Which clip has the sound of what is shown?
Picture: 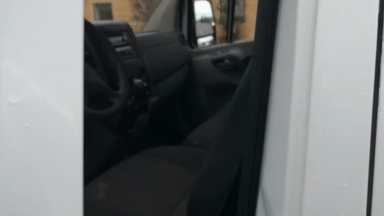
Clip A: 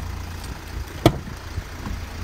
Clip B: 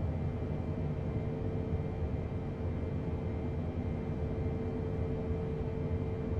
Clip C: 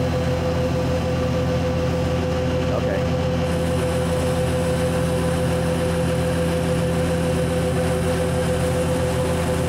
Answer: A